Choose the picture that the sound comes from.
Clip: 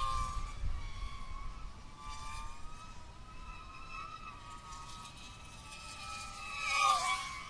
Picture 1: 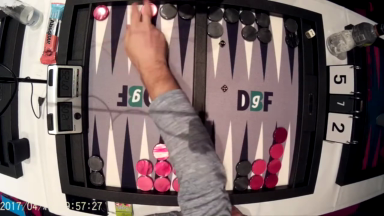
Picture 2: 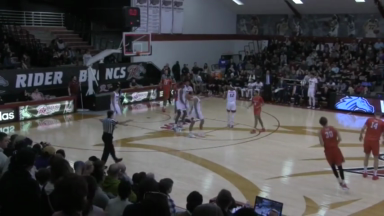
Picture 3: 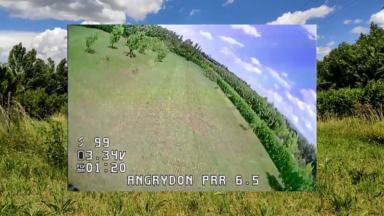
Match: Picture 3